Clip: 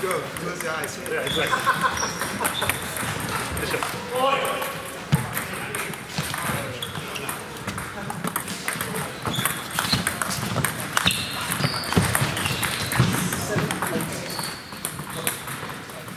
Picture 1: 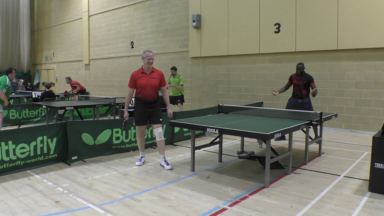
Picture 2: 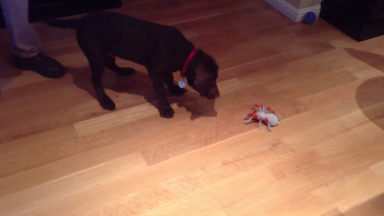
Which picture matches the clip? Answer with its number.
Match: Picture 1